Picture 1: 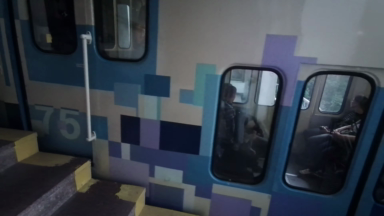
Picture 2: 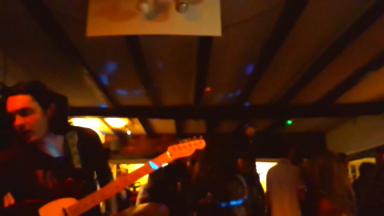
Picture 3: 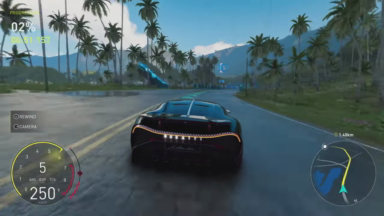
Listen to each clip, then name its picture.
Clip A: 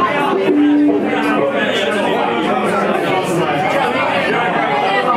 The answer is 2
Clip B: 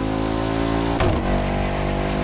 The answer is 3